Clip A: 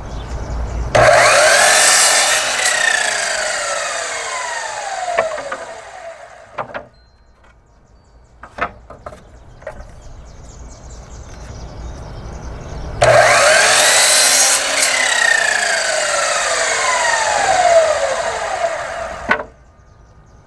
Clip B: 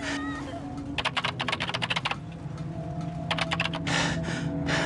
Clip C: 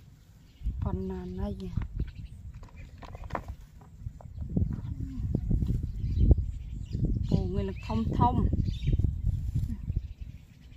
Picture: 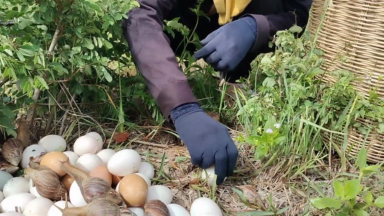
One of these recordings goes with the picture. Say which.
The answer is C